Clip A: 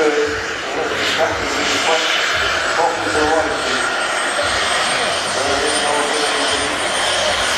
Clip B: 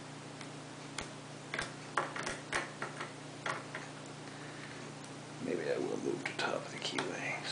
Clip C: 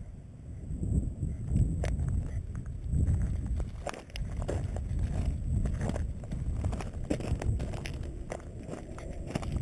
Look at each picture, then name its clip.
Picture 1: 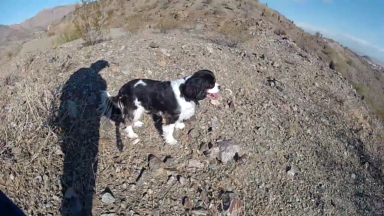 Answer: C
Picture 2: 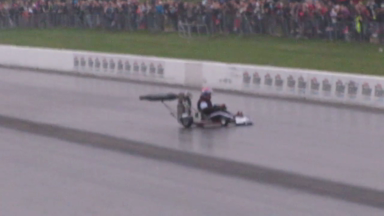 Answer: A